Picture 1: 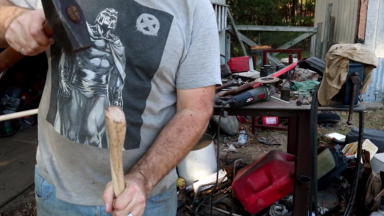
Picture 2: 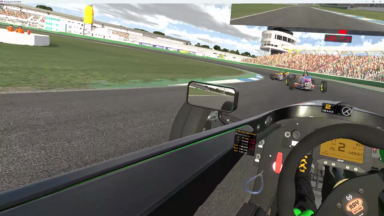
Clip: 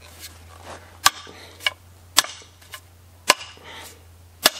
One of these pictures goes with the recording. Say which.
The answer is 1